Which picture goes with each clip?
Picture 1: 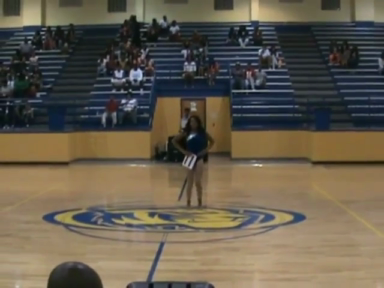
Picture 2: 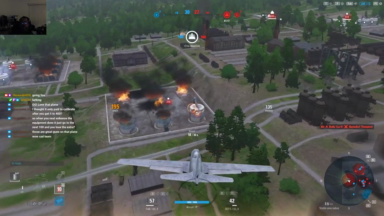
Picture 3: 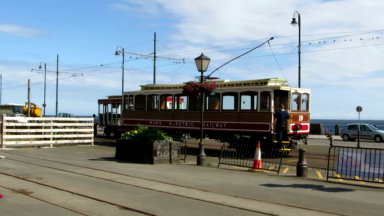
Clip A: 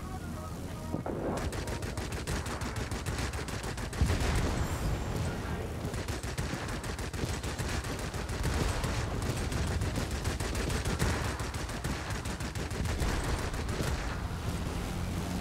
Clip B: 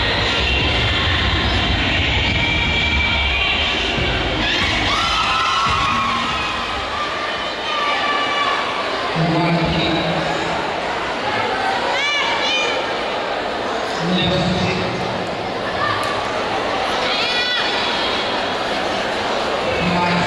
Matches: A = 2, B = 1